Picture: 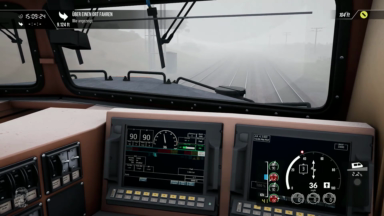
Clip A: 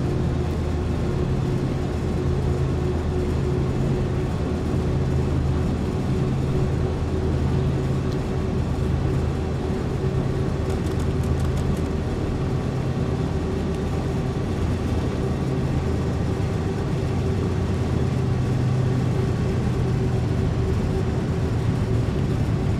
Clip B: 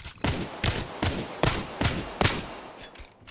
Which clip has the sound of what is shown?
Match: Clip A